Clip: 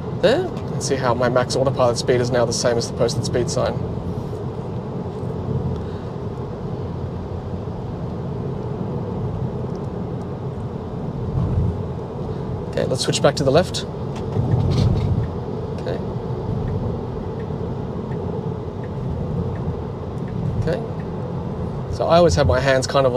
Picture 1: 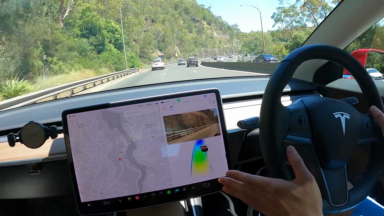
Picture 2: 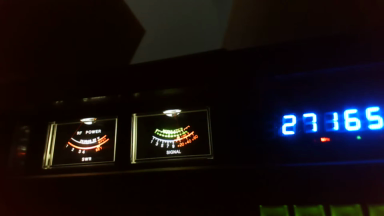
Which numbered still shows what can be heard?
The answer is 1